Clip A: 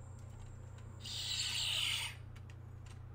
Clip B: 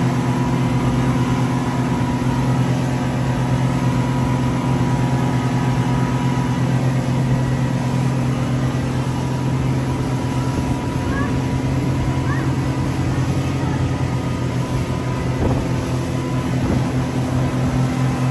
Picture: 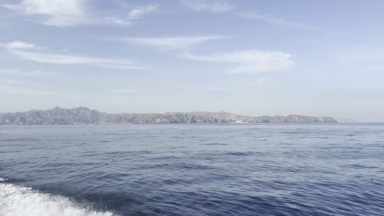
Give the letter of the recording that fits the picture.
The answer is B